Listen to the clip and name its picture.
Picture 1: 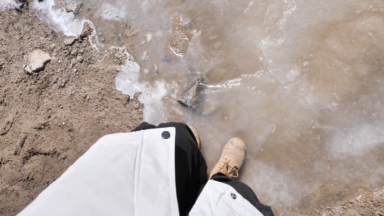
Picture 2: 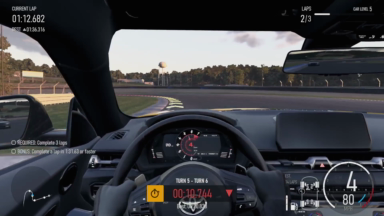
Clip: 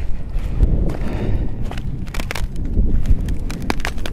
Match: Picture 1